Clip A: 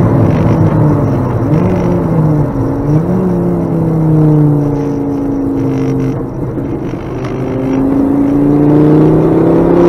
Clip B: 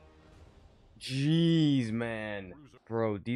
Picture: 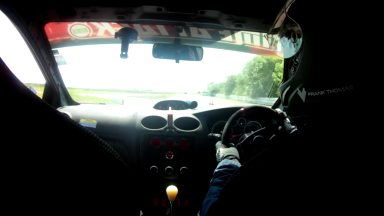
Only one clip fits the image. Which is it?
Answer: A